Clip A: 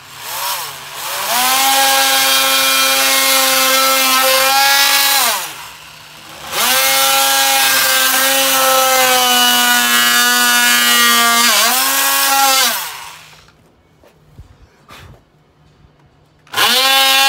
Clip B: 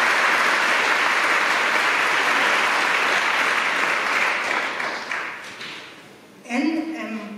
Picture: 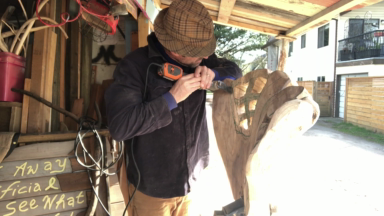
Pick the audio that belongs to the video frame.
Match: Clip A